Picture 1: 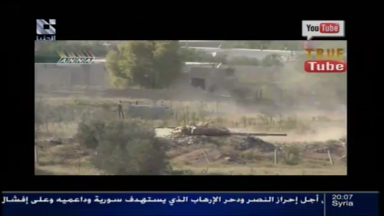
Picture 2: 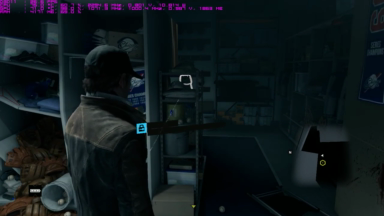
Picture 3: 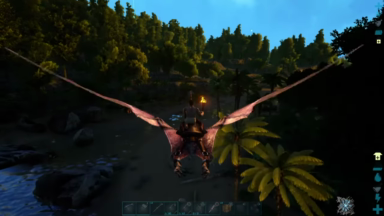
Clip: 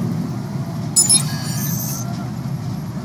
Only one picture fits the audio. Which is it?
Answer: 2